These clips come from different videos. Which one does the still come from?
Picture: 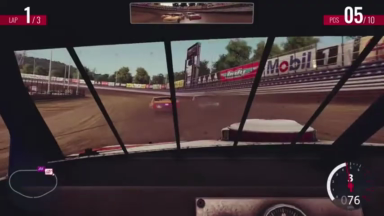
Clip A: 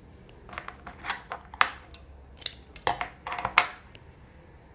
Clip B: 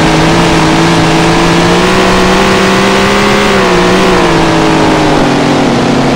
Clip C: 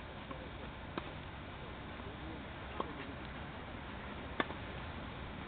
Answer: B